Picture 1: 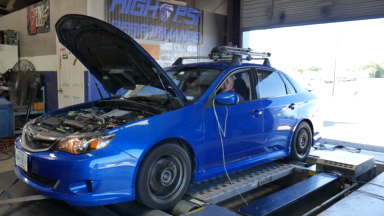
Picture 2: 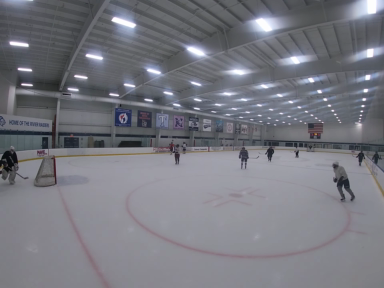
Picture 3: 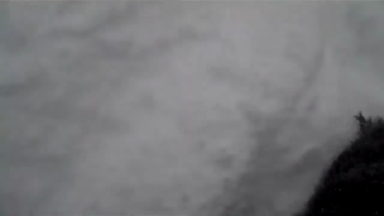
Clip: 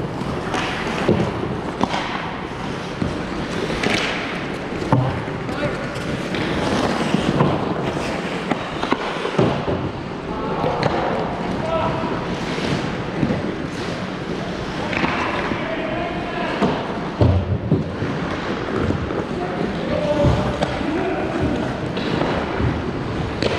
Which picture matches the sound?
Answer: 2